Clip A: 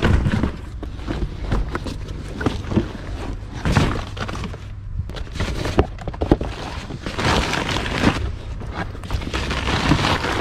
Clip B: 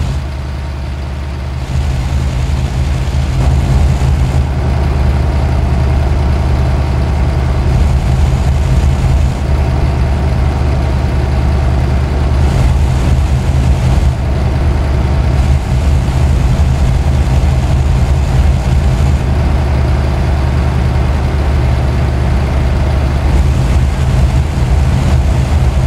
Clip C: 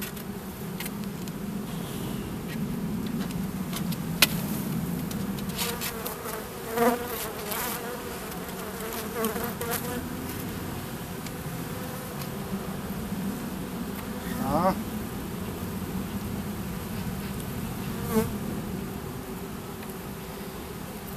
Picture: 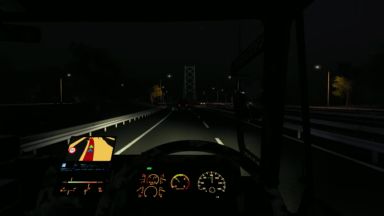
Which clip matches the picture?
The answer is B